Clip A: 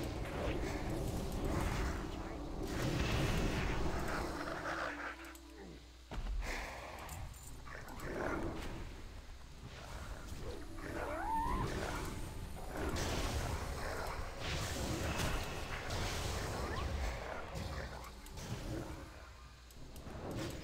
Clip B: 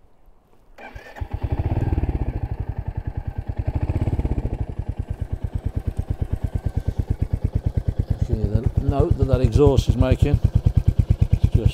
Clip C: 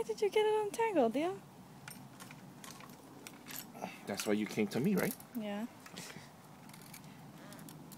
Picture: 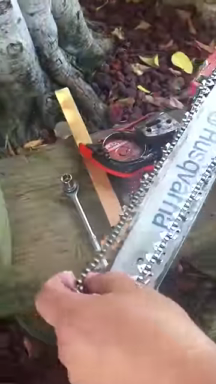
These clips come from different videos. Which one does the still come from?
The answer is C